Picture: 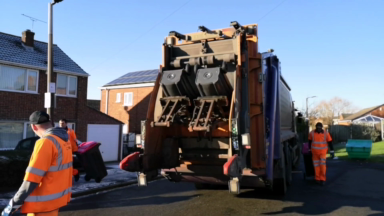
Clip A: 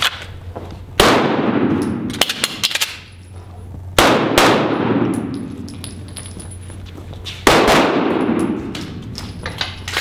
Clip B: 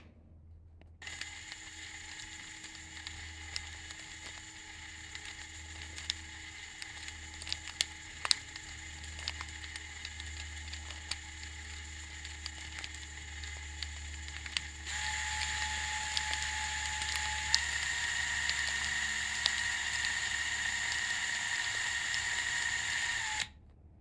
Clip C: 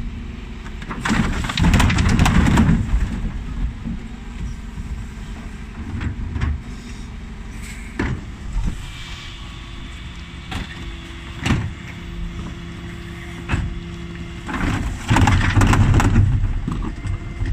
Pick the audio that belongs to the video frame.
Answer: C